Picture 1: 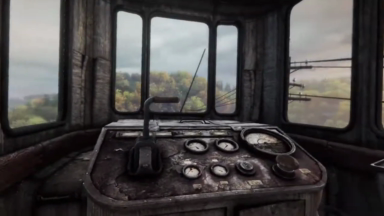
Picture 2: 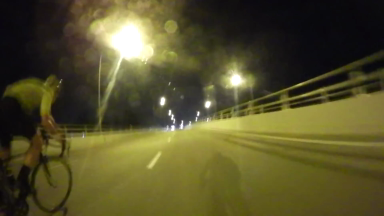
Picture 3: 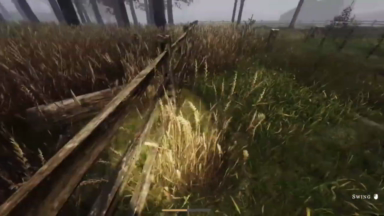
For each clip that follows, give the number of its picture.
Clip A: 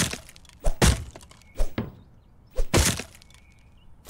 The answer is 3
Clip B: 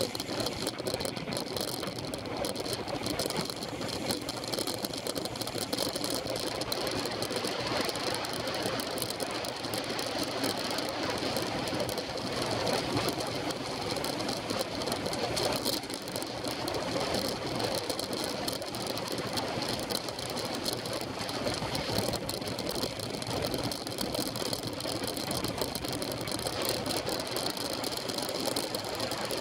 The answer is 2